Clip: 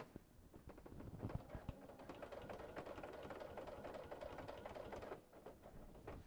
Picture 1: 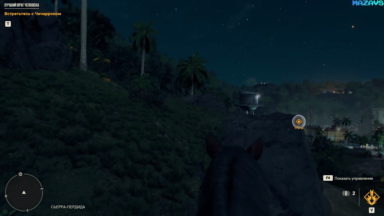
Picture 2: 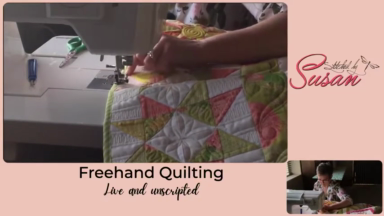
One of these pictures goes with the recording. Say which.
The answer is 2